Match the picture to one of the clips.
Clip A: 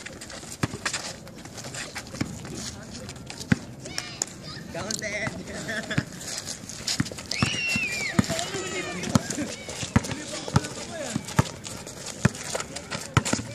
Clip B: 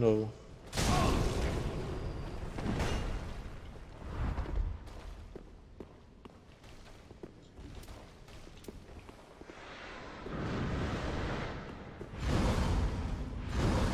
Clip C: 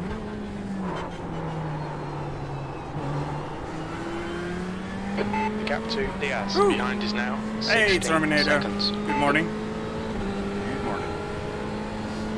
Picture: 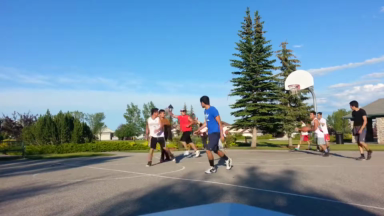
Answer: A